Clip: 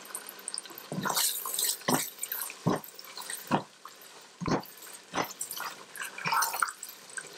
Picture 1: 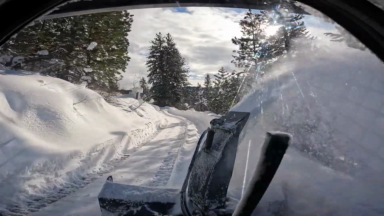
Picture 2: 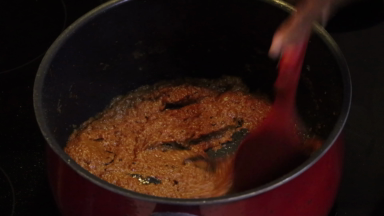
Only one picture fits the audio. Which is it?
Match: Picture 2